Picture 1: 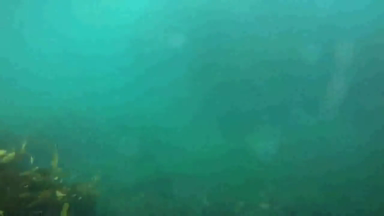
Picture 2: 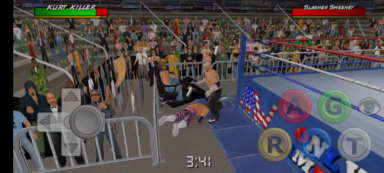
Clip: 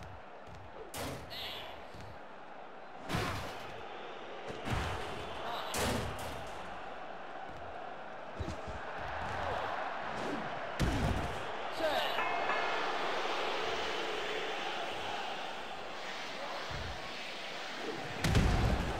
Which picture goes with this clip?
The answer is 2